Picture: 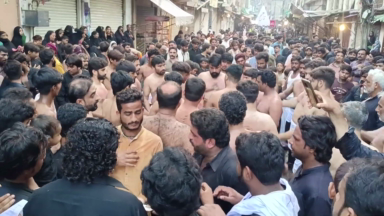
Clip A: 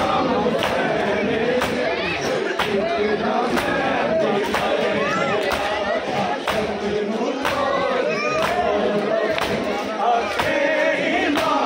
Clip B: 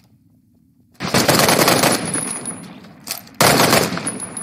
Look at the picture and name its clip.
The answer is A